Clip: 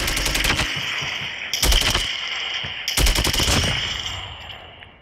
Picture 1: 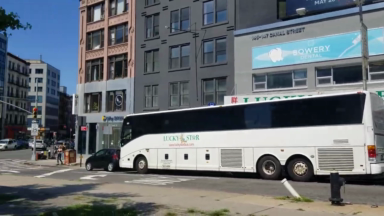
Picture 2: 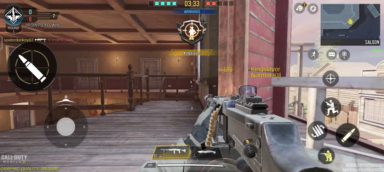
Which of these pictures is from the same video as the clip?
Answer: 2